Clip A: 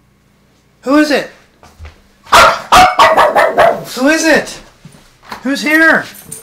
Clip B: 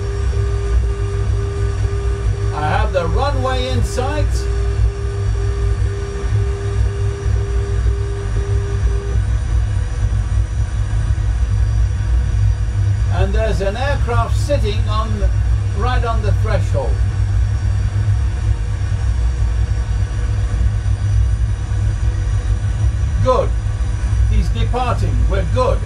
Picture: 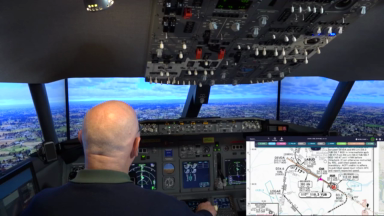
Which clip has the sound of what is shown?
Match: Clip B